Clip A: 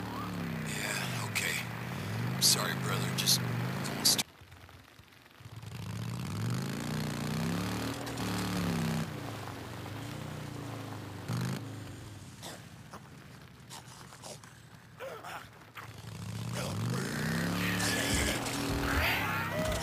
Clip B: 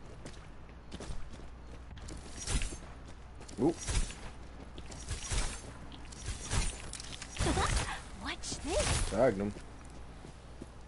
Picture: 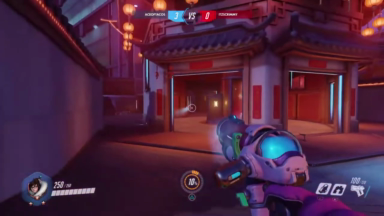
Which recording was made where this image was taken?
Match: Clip B